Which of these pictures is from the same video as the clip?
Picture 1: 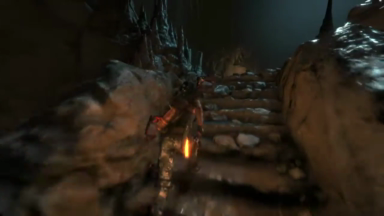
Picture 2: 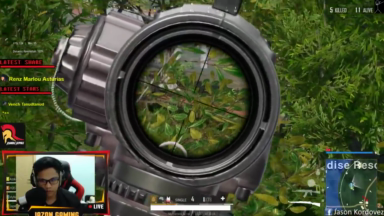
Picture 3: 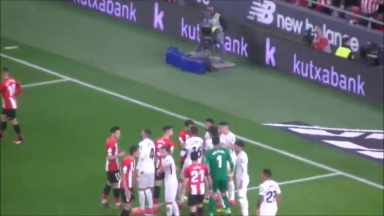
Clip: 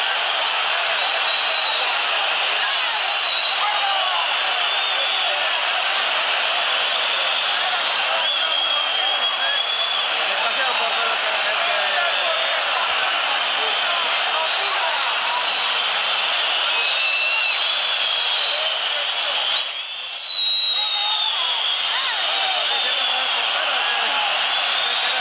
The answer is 3